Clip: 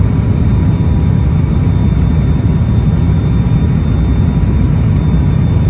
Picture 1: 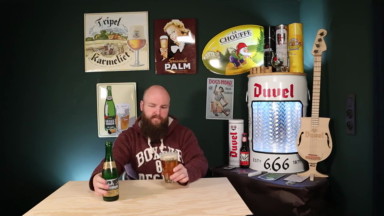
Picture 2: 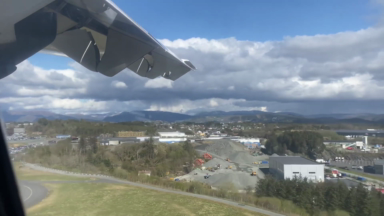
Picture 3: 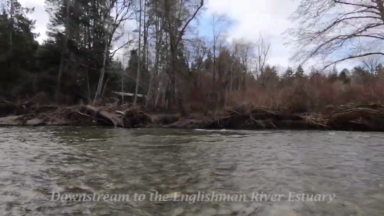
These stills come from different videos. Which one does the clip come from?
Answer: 2